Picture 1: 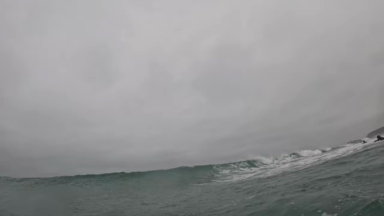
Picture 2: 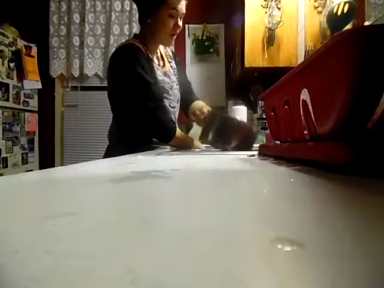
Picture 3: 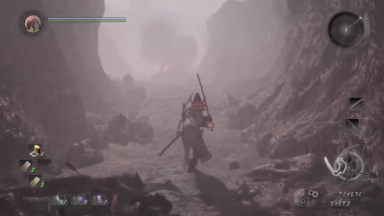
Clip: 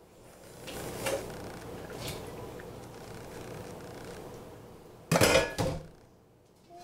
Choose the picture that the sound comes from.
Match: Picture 2